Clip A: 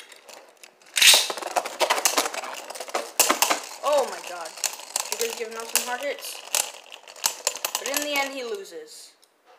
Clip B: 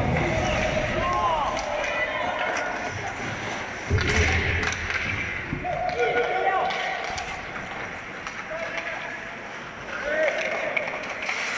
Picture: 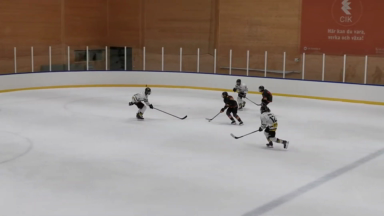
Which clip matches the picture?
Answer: B